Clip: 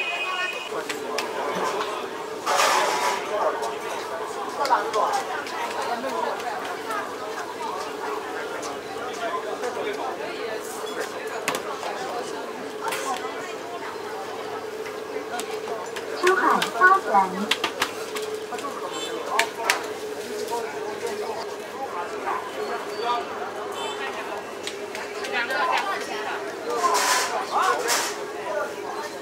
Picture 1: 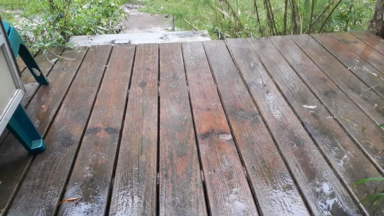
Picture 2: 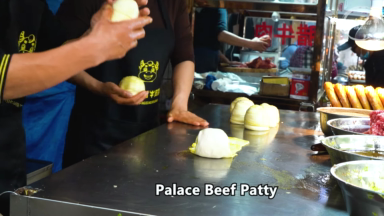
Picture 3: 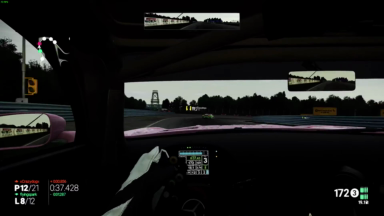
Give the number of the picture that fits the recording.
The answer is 2